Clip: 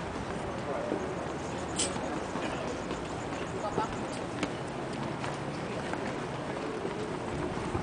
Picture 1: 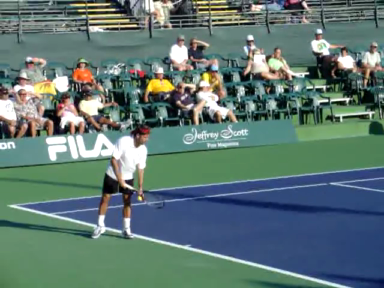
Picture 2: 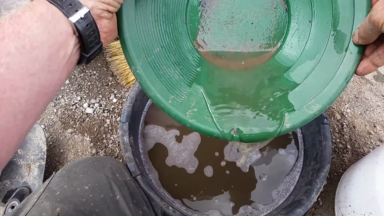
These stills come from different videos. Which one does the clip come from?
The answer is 1